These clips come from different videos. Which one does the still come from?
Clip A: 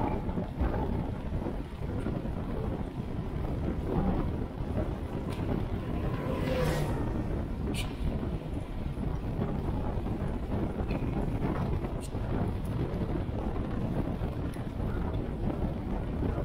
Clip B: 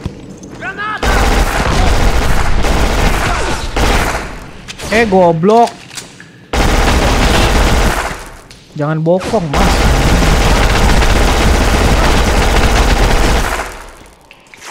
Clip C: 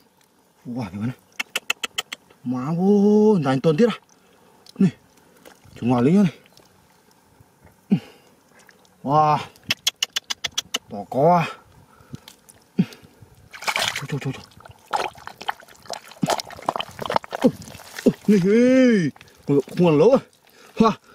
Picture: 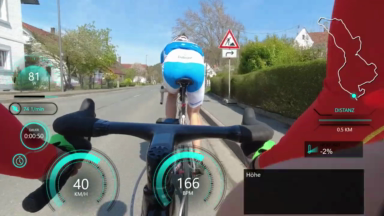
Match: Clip A